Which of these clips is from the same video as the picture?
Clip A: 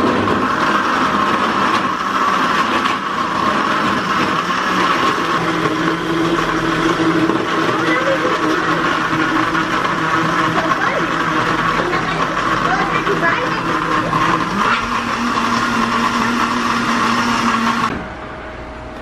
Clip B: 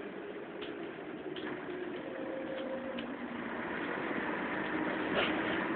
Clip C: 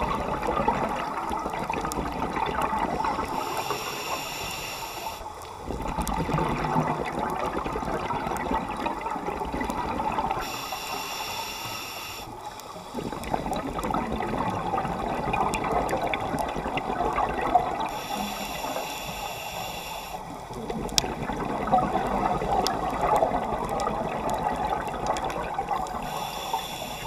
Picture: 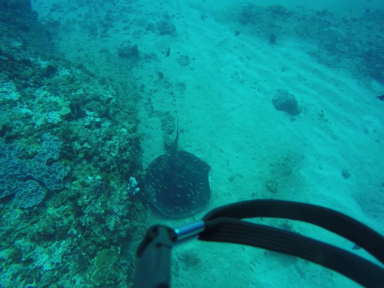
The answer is C